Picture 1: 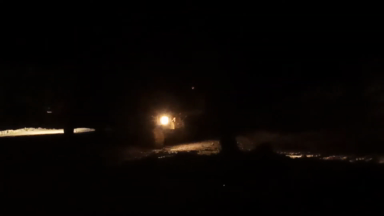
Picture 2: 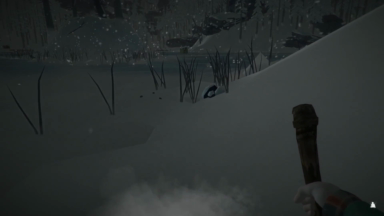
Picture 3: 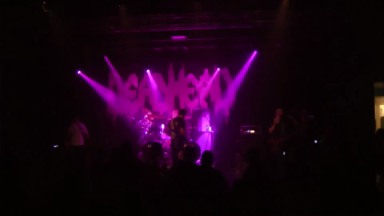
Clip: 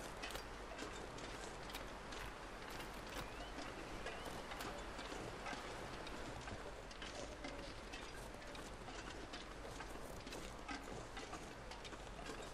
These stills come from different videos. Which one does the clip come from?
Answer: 2